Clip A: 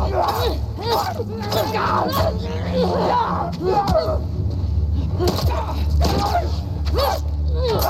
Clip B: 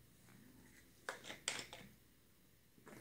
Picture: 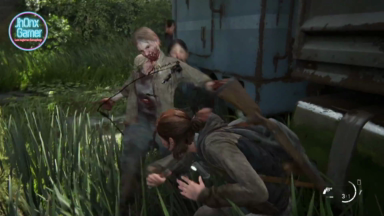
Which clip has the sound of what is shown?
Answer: A